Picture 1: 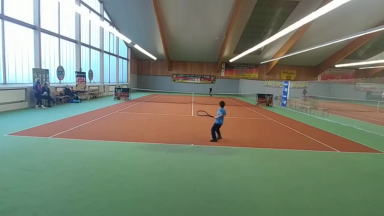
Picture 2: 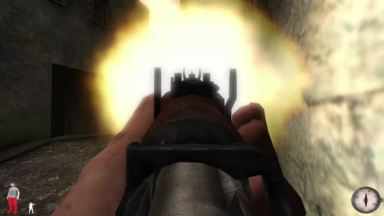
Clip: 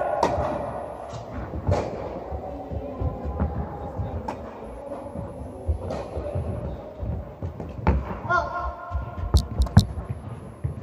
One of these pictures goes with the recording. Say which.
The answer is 1